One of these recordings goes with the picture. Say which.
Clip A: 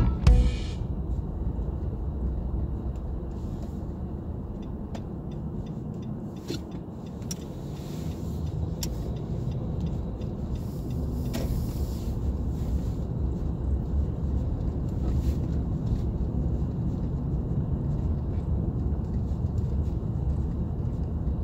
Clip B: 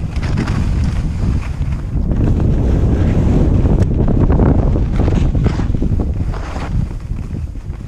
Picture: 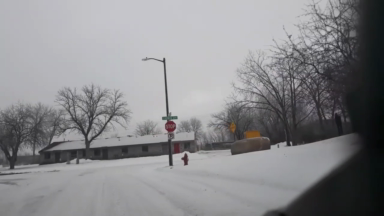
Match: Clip A